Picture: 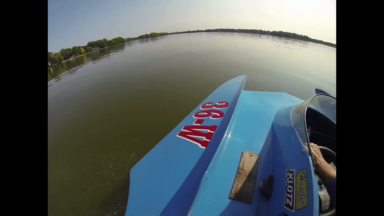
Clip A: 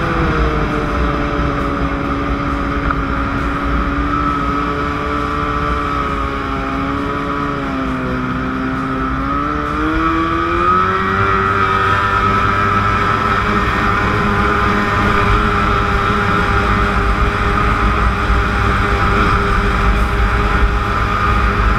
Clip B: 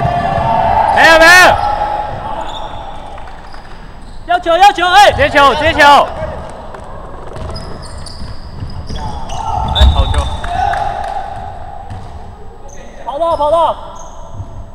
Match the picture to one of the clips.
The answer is A